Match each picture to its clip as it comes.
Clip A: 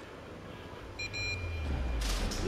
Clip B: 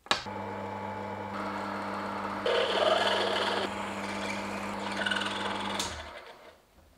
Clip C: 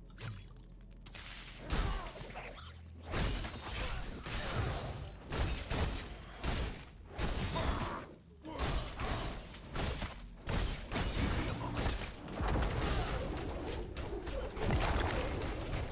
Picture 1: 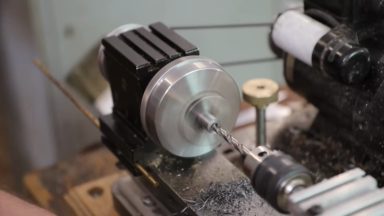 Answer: B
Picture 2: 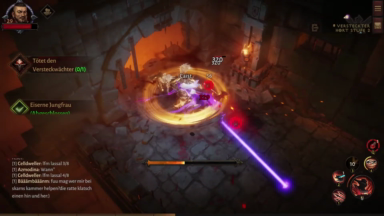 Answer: C